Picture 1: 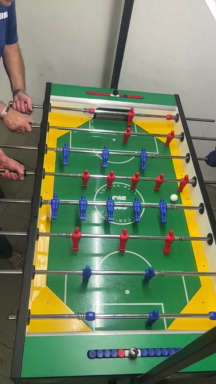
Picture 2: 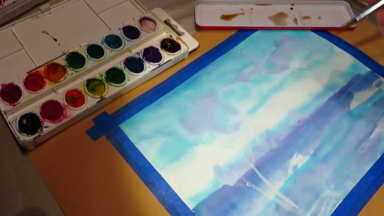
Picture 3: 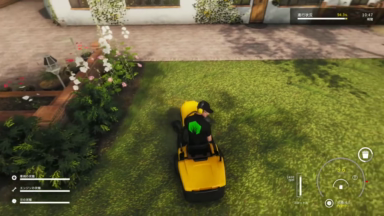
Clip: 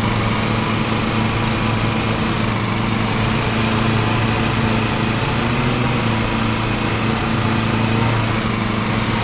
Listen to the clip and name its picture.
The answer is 3